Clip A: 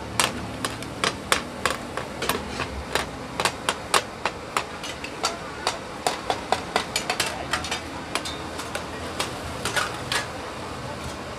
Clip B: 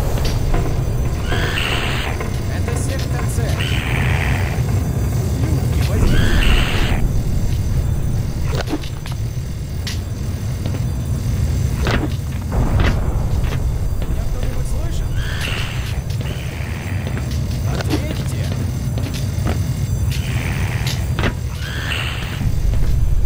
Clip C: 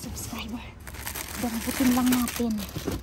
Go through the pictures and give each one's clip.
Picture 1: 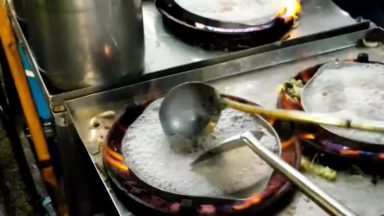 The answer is A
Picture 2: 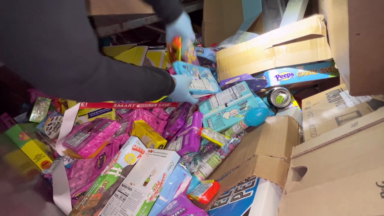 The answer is C